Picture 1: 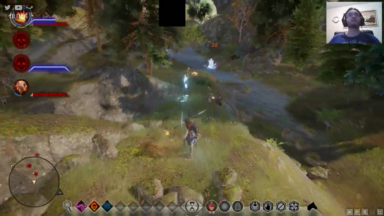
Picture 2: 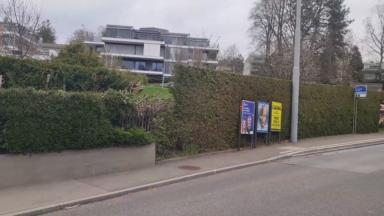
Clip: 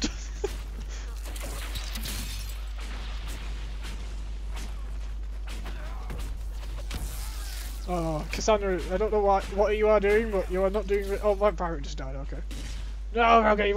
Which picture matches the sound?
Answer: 1